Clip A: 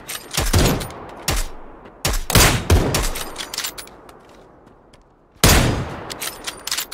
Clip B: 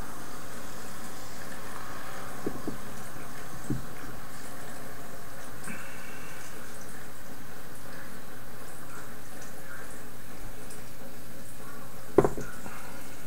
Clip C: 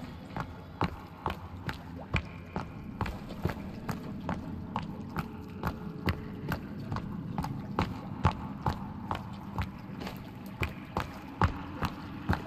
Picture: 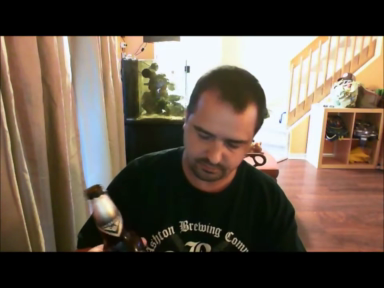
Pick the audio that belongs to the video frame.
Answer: B